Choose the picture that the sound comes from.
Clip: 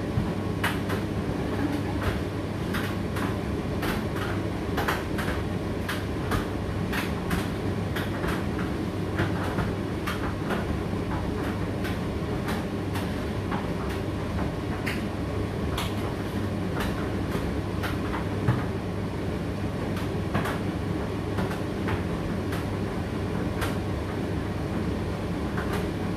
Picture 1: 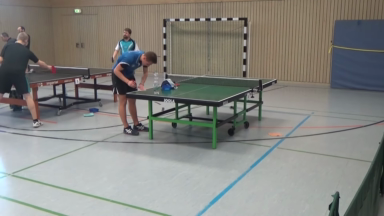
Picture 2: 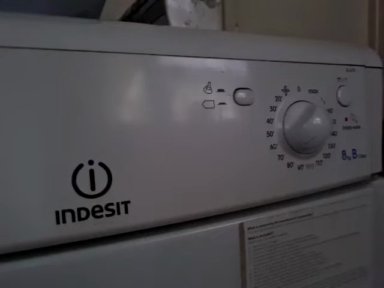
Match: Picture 2